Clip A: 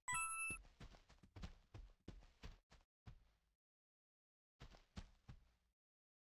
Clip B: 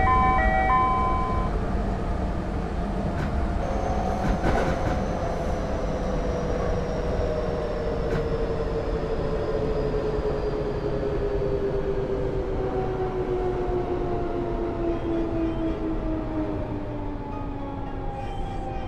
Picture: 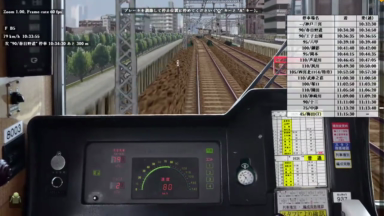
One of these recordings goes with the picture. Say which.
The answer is B